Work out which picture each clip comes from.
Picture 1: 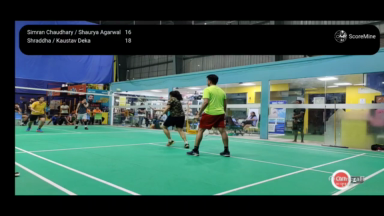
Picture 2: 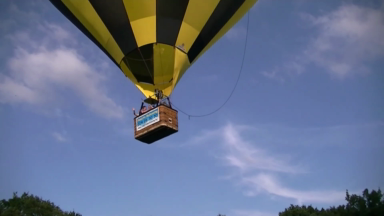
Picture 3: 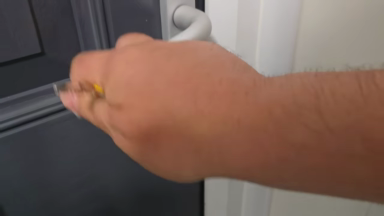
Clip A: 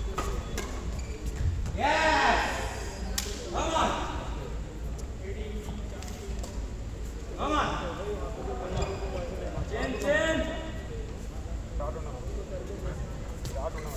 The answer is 1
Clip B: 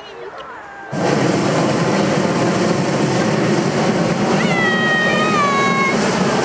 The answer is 2